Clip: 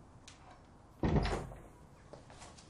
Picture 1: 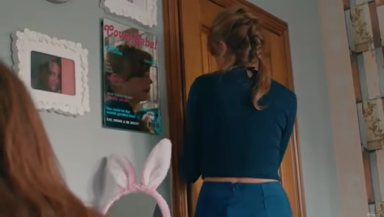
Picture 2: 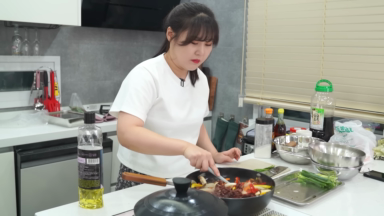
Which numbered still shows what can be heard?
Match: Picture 1